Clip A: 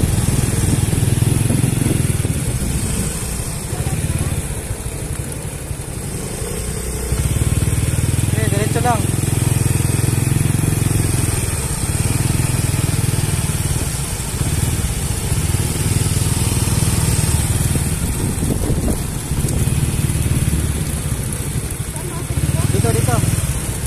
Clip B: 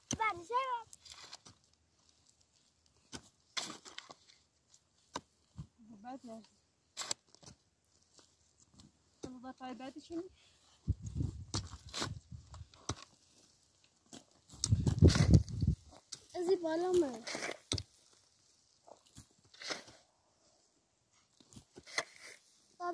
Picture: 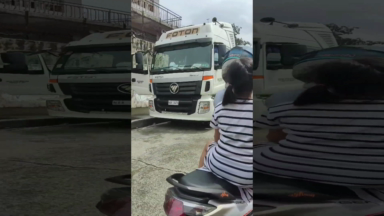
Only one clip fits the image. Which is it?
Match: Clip A